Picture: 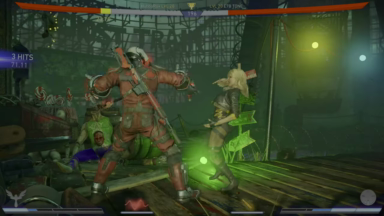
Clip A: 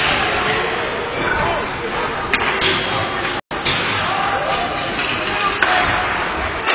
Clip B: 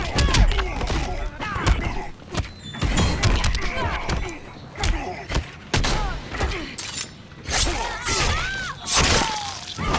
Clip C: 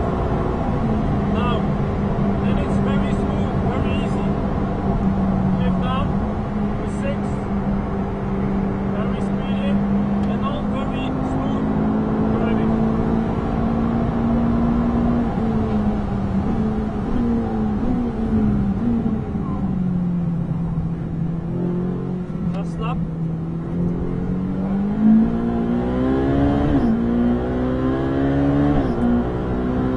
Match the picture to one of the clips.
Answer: B